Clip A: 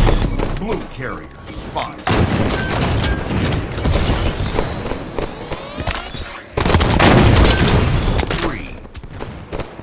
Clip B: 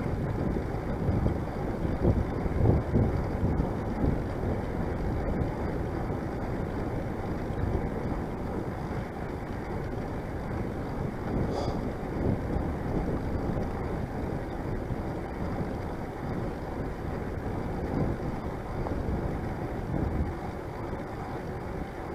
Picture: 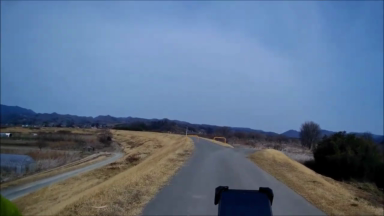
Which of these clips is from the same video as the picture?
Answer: B